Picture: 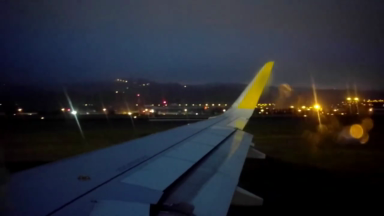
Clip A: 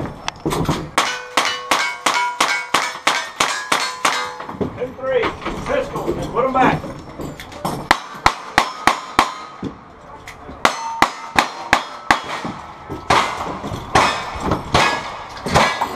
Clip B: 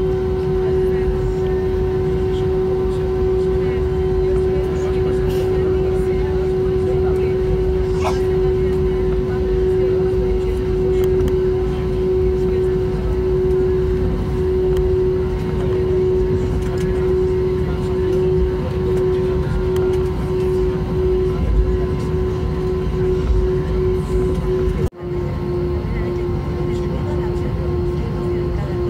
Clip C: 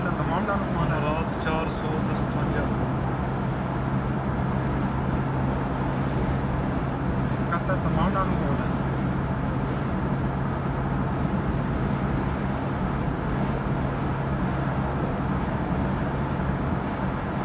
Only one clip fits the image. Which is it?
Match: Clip B